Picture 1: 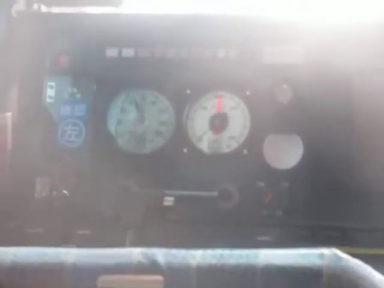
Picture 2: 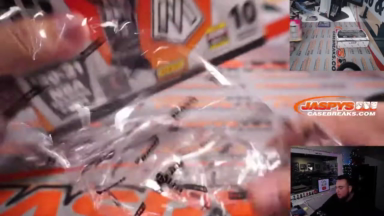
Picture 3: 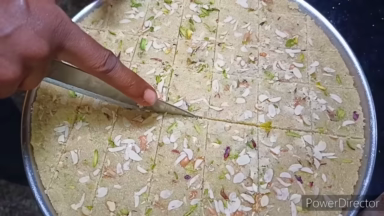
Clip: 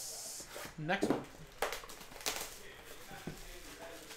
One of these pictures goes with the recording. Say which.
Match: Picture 2